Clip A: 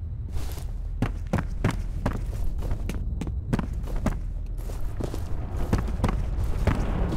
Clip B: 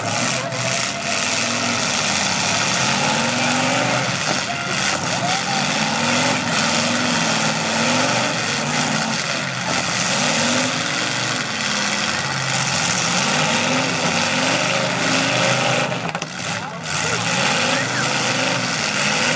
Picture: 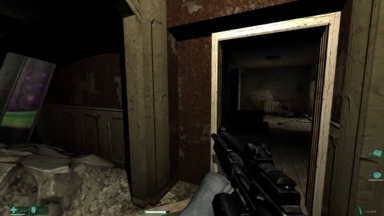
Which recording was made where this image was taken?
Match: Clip A